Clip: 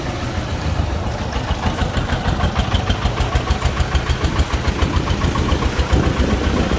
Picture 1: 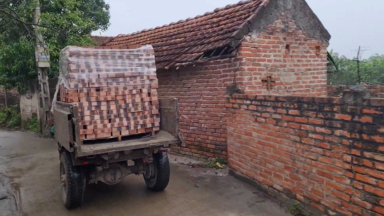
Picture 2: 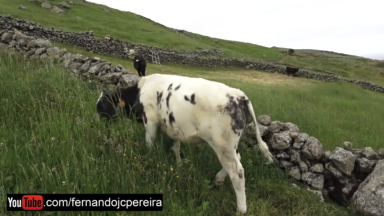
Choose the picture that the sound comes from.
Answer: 1